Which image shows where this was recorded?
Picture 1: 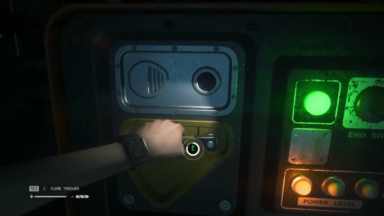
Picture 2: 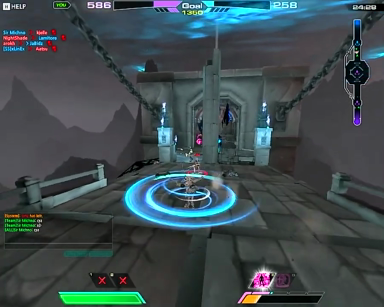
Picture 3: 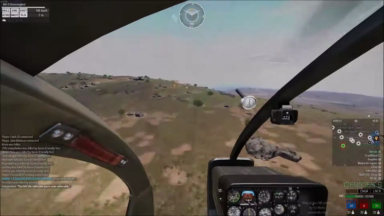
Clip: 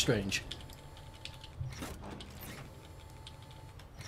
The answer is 1